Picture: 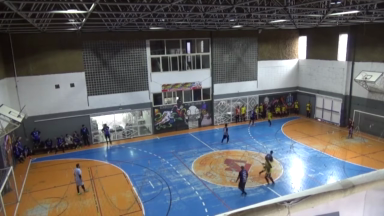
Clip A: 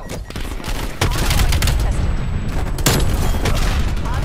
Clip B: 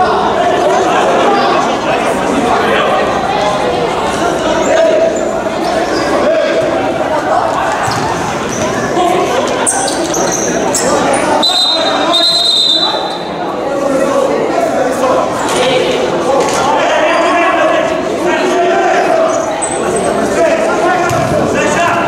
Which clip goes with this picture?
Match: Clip B